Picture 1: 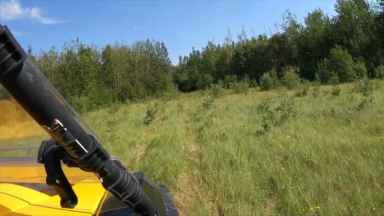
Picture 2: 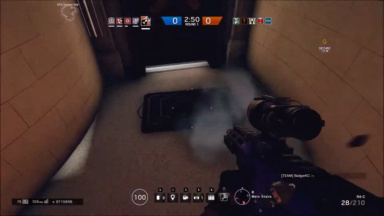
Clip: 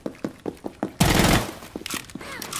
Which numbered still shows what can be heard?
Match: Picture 2